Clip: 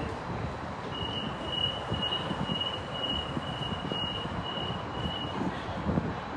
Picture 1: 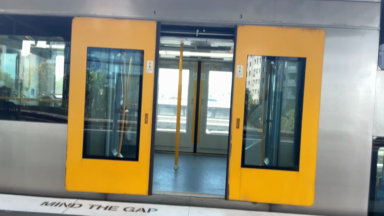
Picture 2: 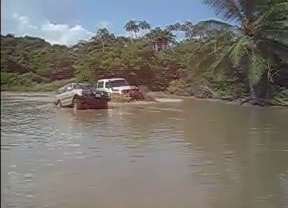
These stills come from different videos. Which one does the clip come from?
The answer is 1